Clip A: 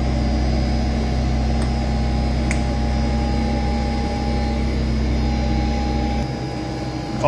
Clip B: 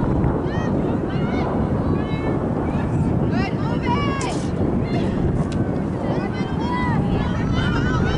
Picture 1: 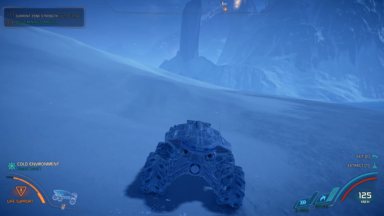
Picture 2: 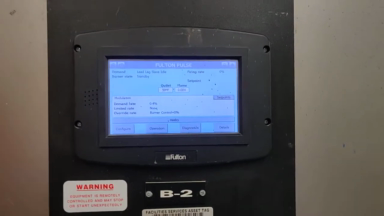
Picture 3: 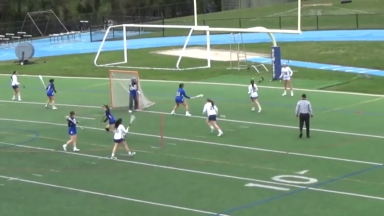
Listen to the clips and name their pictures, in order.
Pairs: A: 2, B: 3